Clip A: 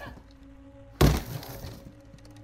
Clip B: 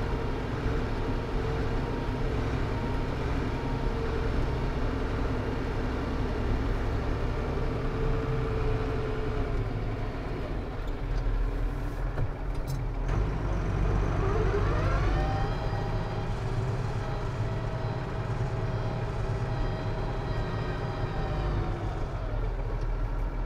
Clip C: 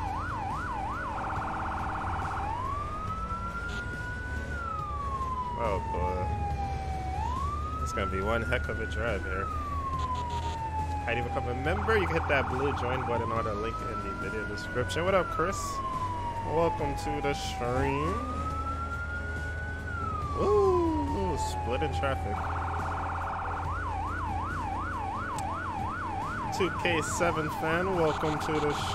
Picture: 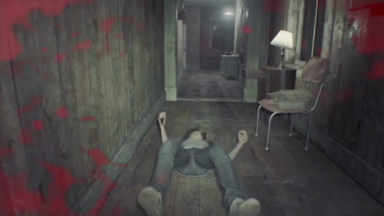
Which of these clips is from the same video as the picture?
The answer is A